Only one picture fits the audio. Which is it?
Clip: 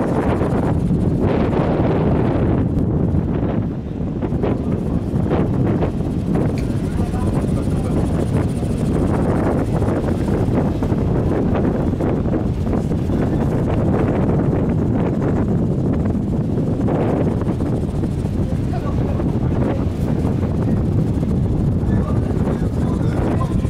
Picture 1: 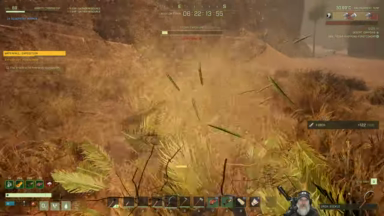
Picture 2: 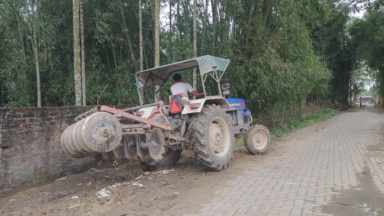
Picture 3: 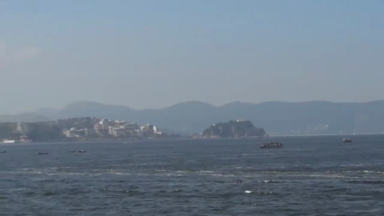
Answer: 3